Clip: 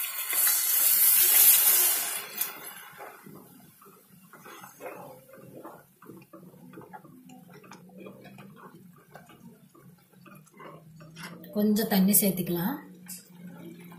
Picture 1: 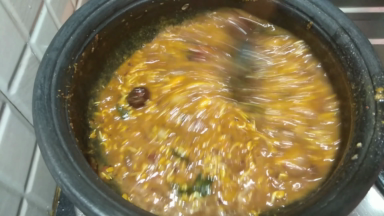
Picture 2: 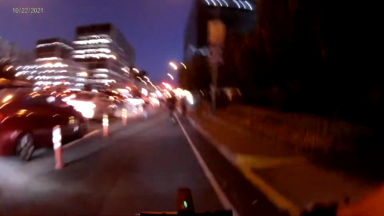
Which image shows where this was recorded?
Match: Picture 1